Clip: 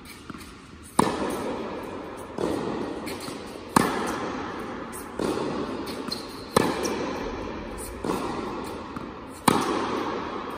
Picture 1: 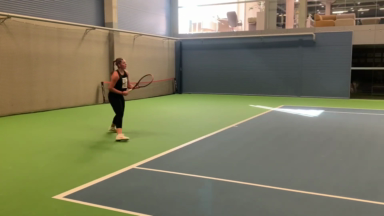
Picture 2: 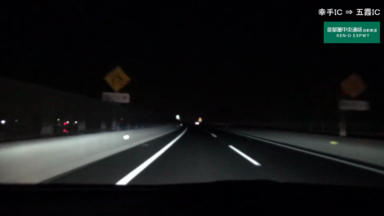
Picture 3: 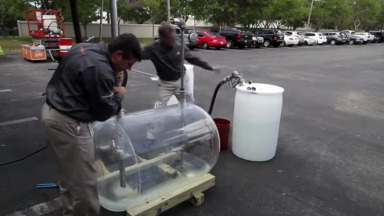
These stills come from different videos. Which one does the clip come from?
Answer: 1